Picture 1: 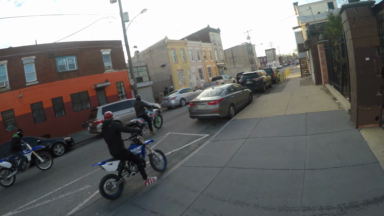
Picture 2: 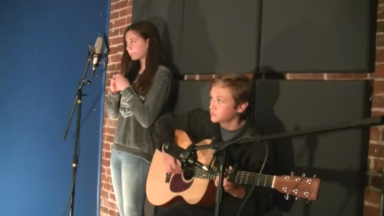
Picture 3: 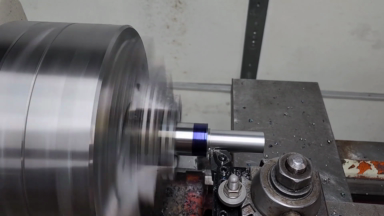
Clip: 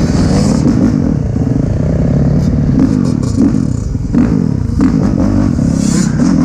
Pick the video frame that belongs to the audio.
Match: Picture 1